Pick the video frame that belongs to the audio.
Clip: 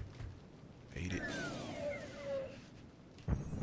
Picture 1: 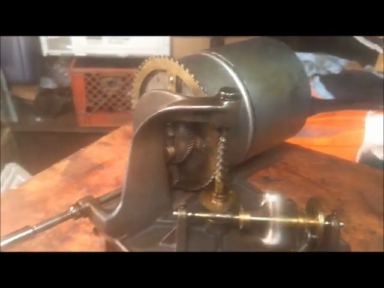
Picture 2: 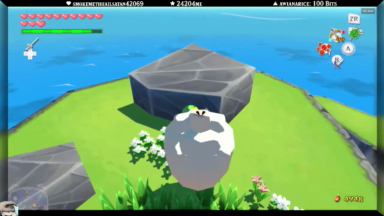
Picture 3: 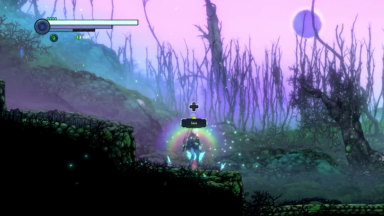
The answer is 3